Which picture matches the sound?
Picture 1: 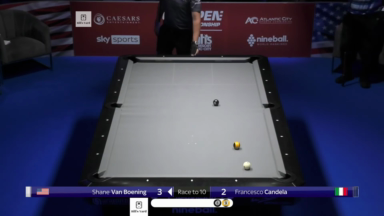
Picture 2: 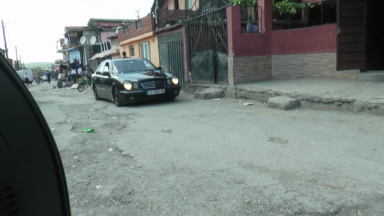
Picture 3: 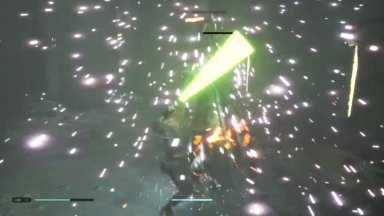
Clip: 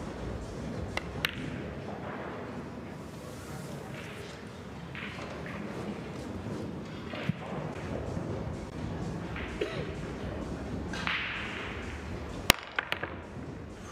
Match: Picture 1